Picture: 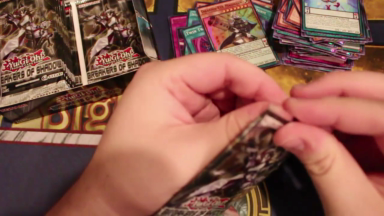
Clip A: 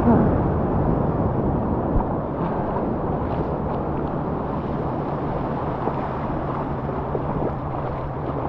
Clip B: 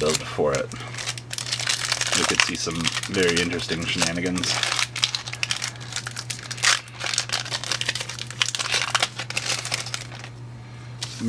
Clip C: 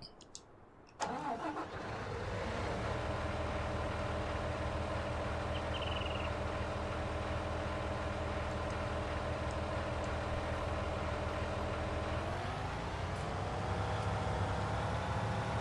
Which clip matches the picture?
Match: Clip B